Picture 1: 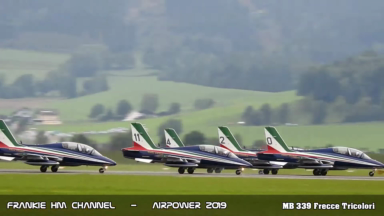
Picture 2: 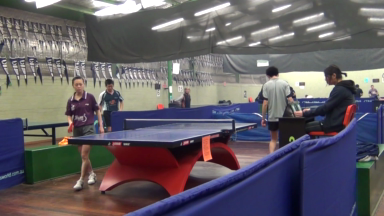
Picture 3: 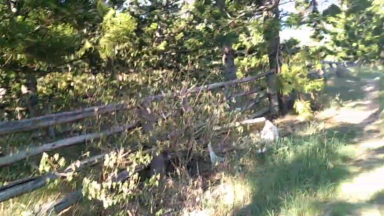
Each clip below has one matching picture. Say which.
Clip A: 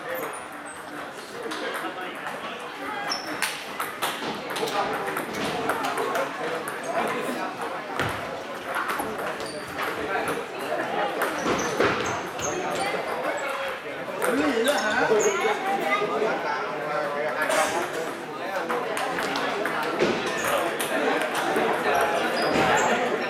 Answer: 2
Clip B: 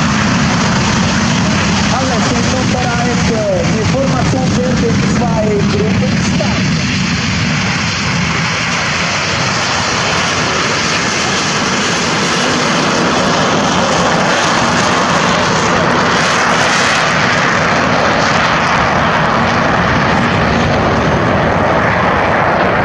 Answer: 1